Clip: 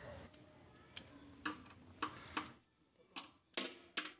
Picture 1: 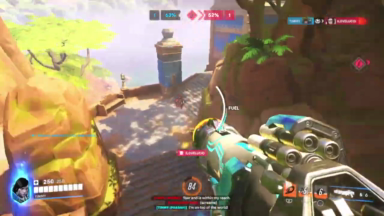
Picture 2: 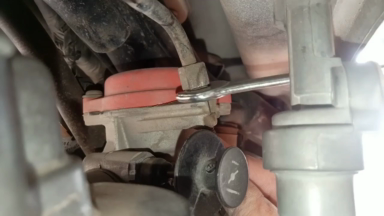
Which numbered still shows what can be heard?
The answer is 2